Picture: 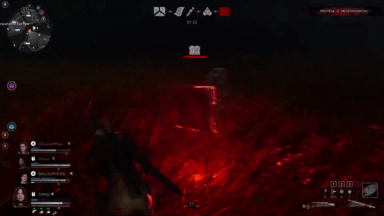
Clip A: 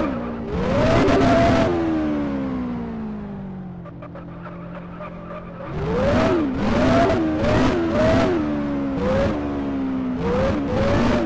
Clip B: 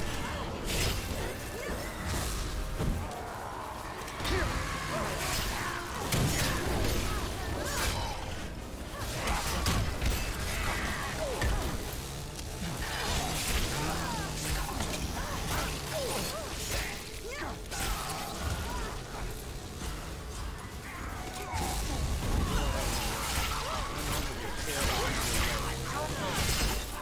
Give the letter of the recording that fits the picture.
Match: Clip B